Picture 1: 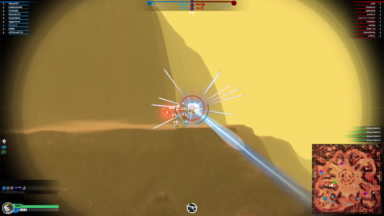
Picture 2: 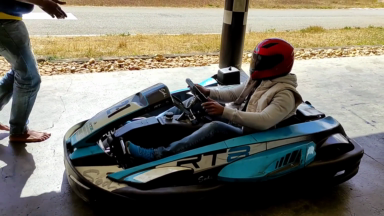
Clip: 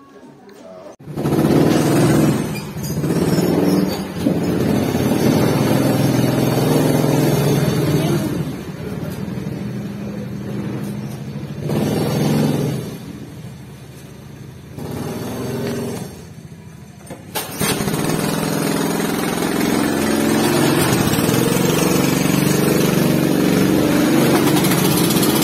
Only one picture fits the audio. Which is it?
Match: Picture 2